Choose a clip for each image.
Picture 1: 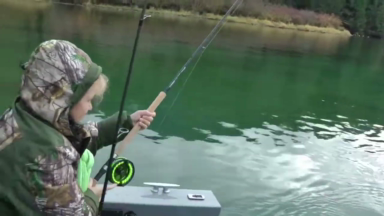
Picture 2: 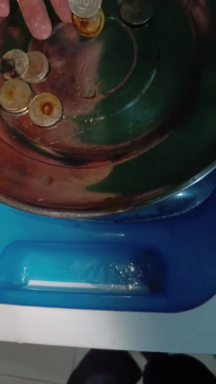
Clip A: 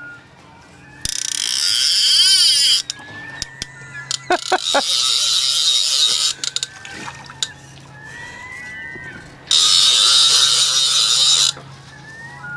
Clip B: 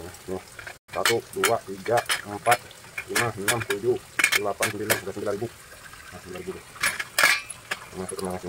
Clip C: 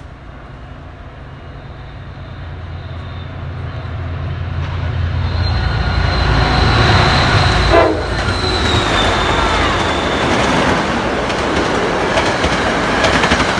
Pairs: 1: A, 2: B